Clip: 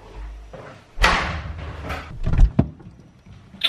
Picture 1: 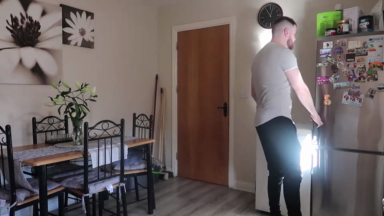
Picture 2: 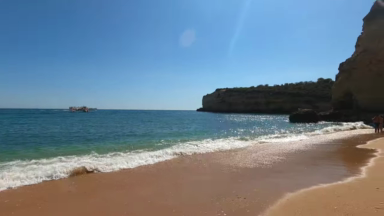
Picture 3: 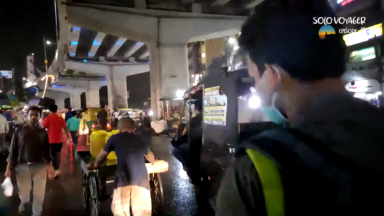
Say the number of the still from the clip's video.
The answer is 1